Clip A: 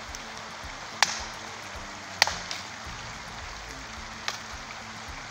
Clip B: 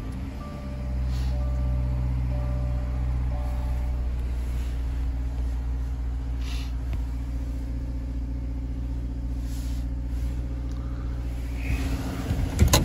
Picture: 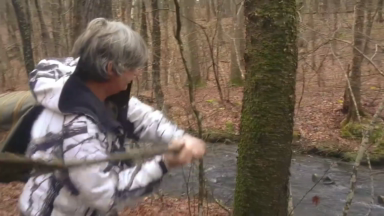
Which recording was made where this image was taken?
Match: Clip A